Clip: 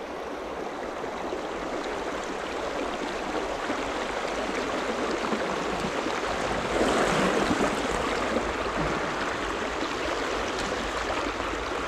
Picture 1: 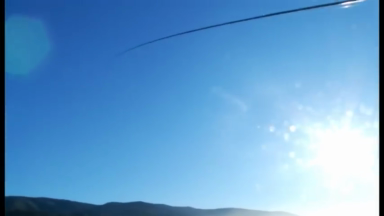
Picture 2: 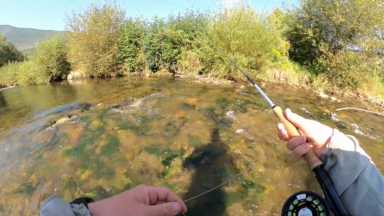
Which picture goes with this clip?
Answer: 2